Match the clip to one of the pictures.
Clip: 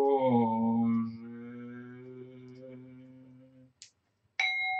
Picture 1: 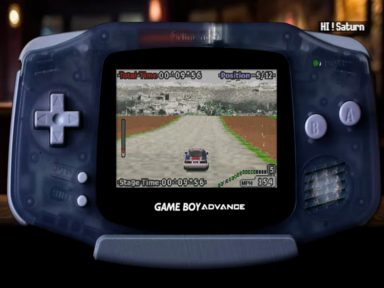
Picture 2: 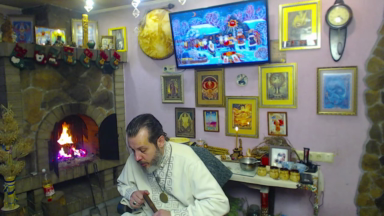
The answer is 2